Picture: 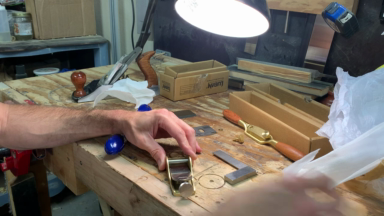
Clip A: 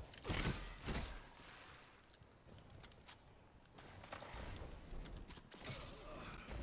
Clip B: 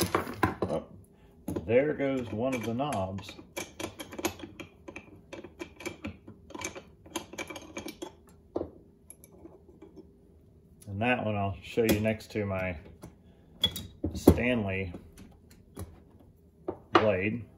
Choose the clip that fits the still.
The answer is B